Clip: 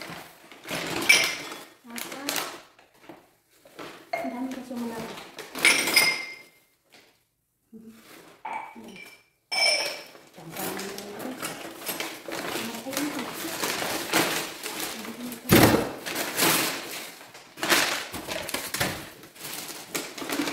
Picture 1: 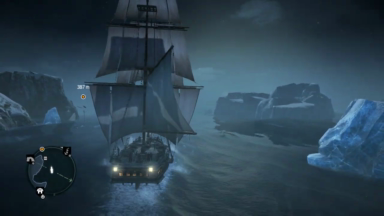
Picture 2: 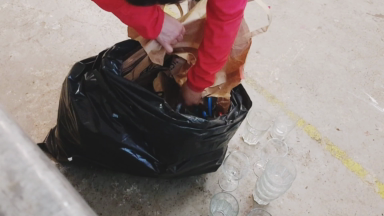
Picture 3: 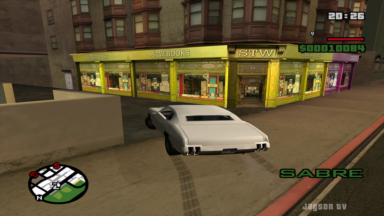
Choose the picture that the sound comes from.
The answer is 2